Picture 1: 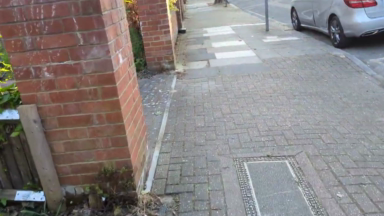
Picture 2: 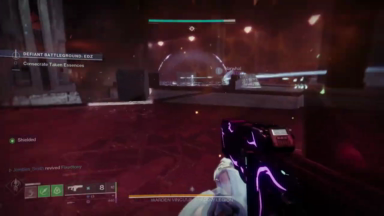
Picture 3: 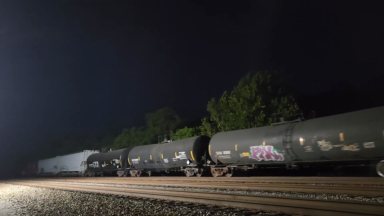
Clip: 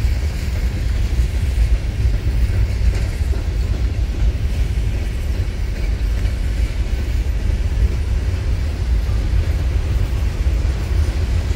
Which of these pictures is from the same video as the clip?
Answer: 3